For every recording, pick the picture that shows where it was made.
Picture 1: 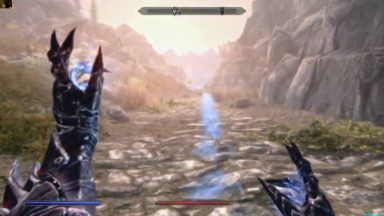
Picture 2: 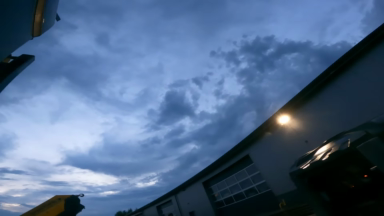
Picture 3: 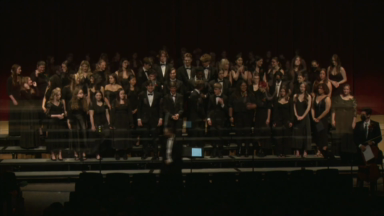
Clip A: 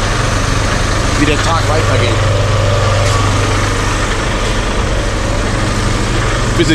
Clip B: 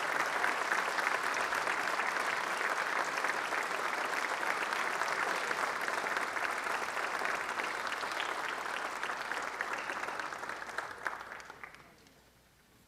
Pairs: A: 2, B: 3